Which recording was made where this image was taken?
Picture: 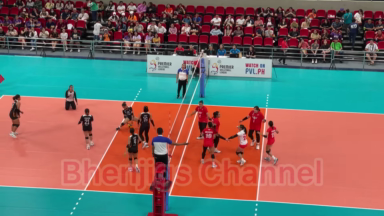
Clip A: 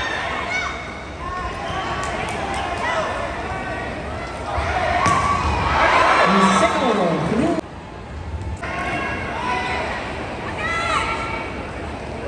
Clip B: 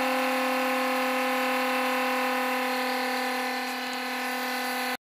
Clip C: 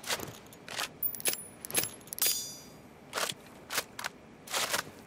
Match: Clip A